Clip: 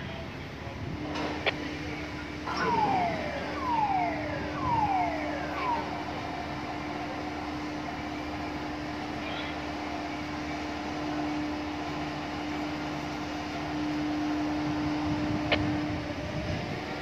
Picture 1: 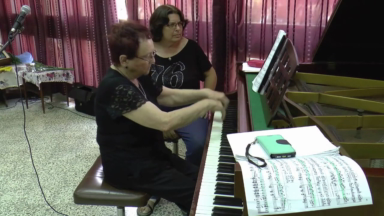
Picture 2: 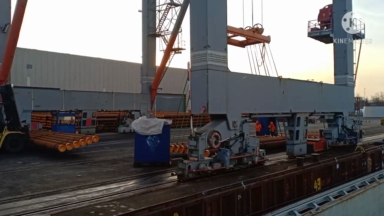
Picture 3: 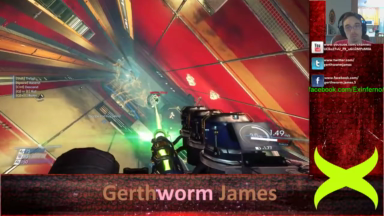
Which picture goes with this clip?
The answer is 2